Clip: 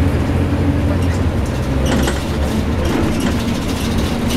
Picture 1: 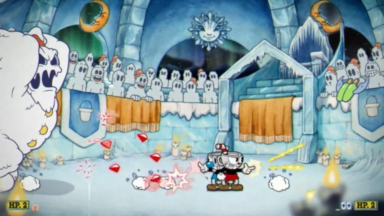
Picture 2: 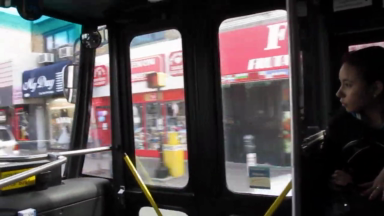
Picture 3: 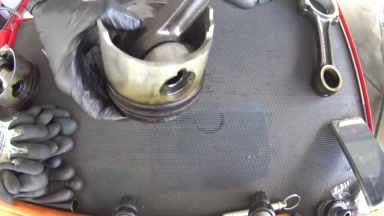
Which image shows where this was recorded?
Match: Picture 2